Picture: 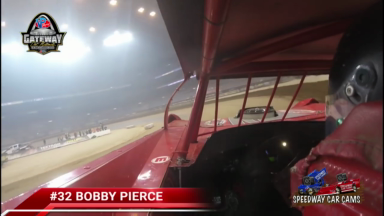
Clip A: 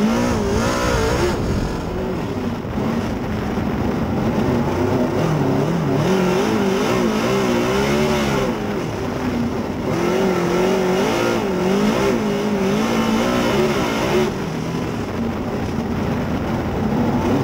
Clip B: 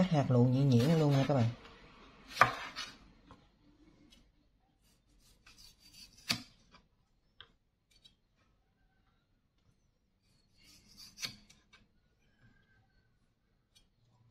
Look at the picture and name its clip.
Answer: A